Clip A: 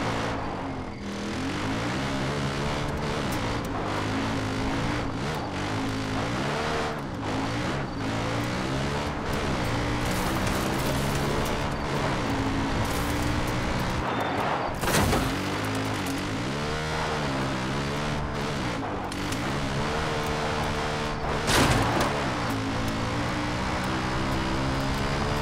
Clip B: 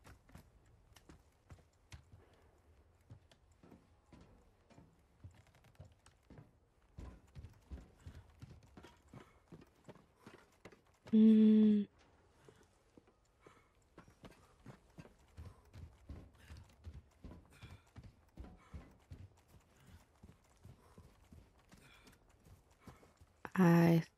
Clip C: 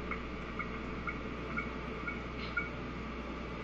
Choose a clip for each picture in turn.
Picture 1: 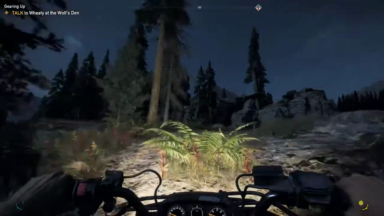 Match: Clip A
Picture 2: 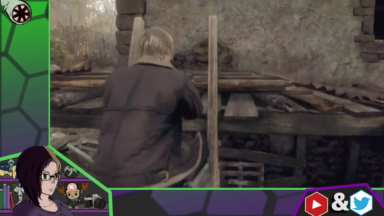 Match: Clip B